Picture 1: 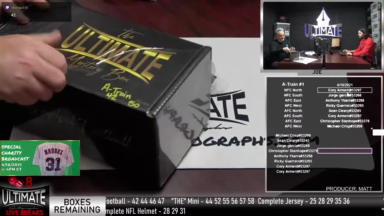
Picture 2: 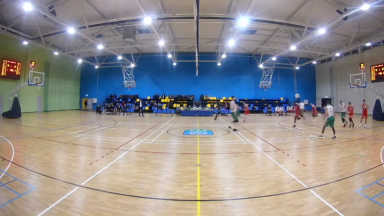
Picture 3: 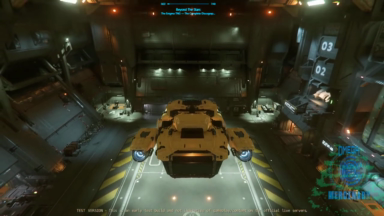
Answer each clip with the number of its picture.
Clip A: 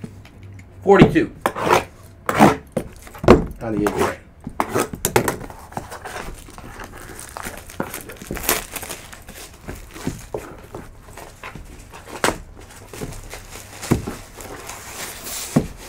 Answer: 1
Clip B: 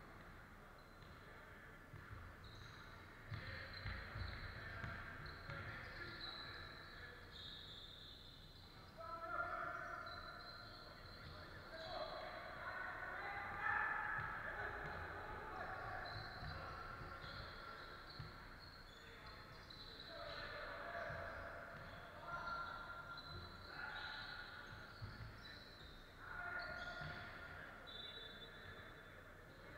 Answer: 2